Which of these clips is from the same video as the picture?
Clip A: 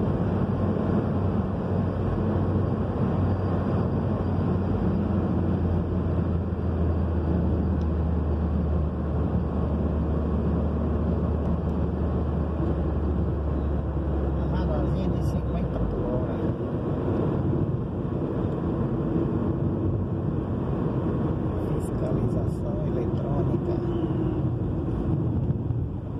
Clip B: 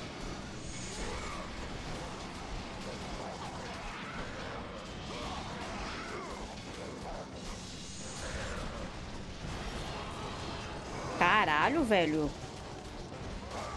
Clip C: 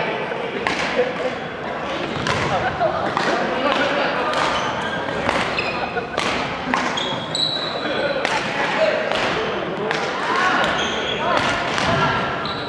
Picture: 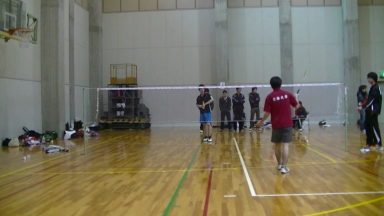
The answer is C